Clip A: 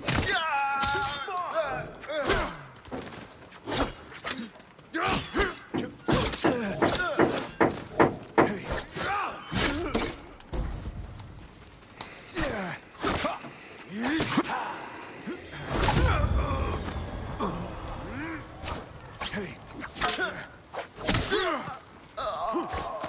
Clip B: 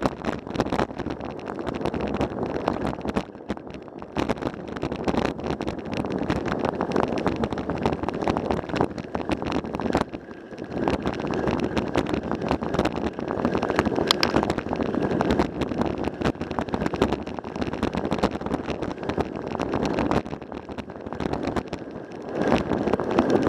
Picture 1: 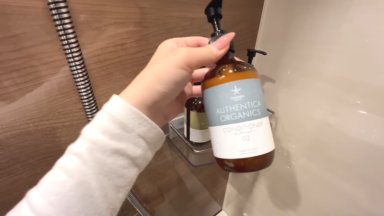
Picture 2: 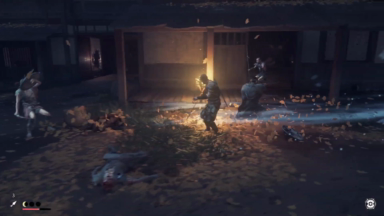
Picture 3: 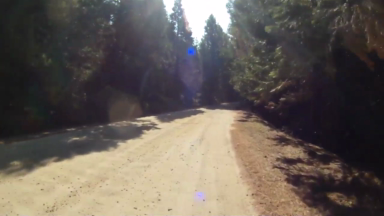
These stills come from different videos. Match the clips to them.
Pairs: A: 2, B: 3